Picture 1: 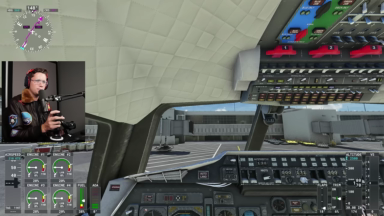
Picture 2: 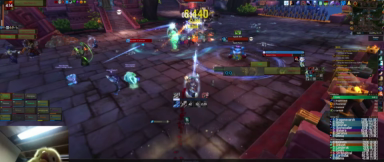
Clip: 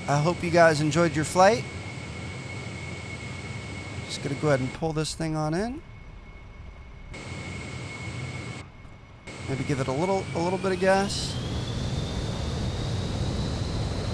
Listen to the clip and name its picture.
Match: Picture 1